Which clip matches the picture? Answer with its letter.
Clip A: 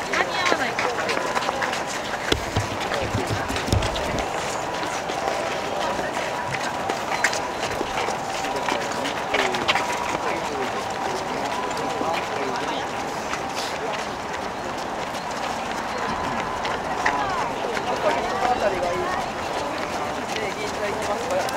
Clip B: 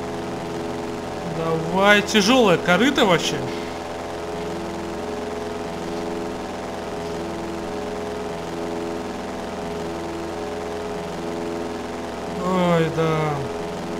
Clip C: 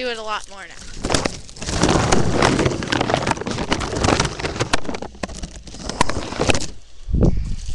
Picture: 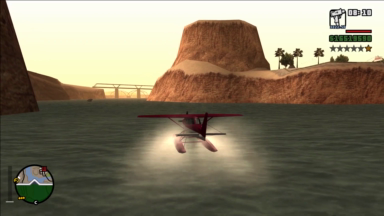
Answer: B